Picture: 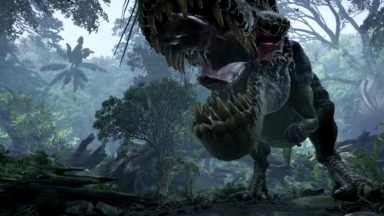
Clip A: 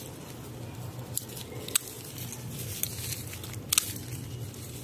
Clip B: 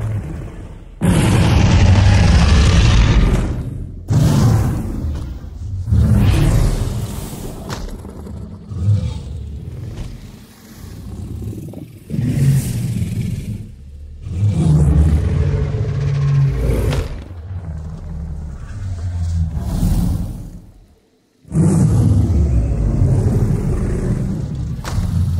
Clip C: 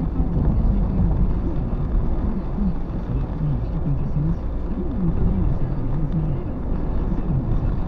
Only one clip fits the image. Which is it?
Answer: B